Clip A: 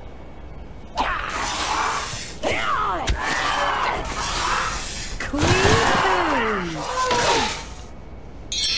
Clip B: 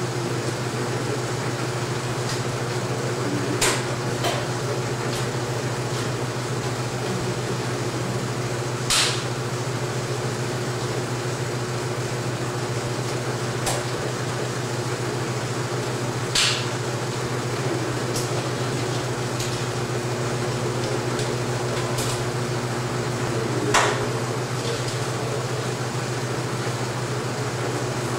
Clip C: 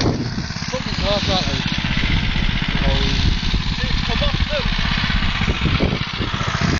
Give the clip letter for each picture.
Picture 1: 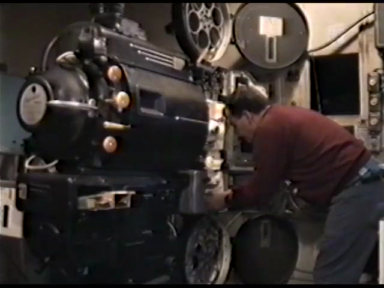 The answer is B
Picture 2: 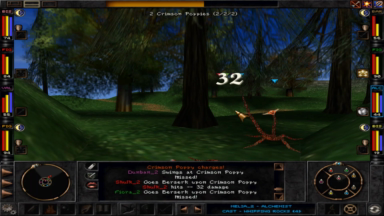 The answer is A